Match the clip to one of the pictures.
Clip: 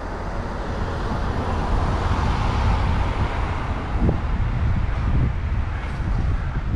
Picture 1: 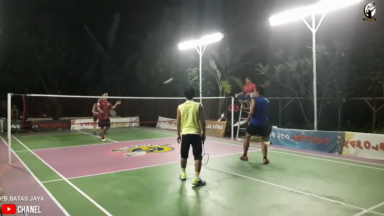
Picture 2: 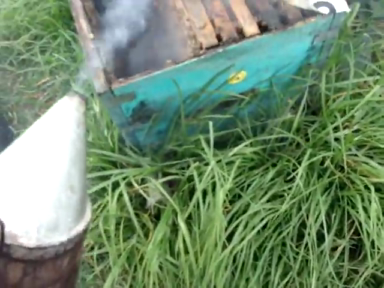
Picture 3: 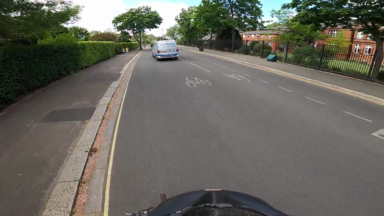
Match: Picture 3